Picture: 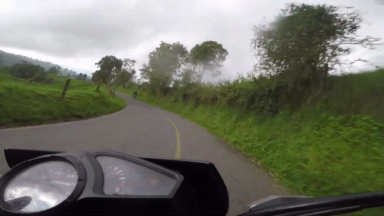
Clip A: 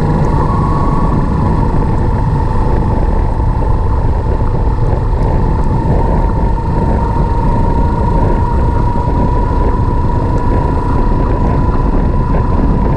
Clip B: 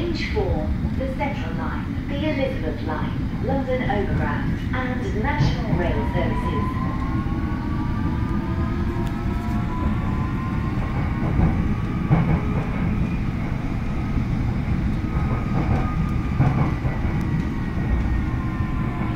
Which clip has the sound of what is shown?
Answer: A